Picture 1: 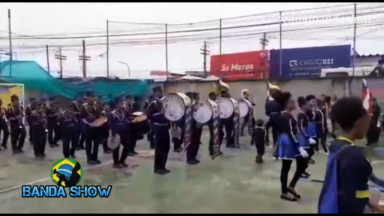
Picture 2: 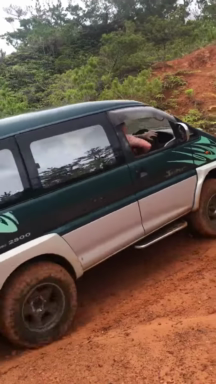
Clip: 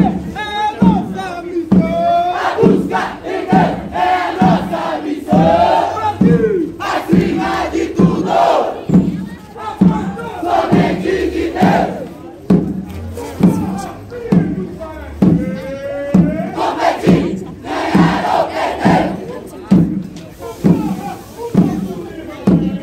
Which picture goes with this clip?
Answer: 1